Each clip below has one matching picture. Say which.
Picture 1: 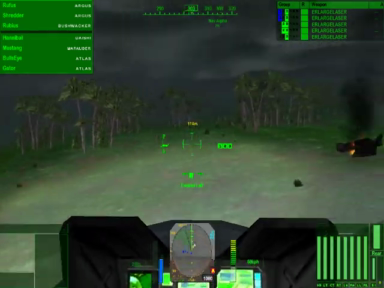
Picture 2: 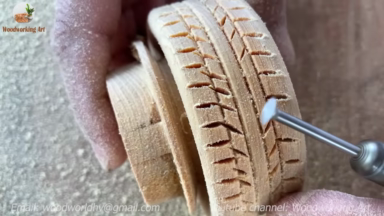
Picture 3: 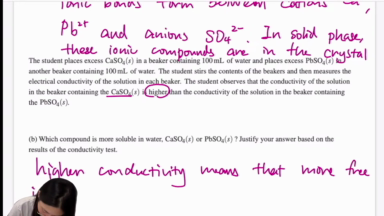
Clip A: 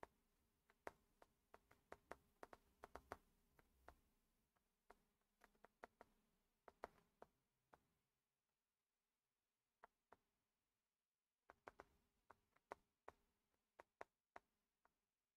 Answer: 3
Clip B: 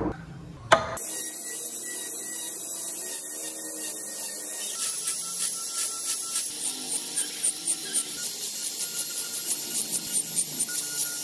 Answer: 2